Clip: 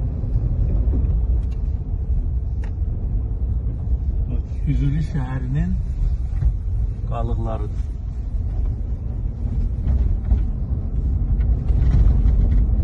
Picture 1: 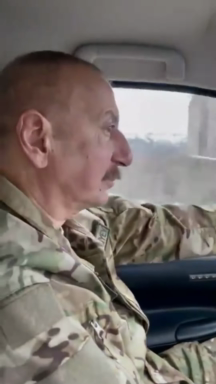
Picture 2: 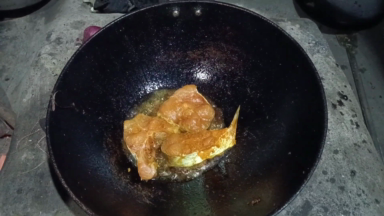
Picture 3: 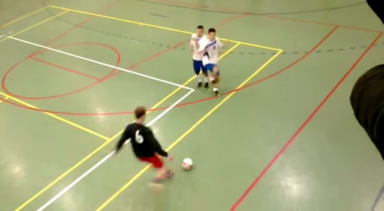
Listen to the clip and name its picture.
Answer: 1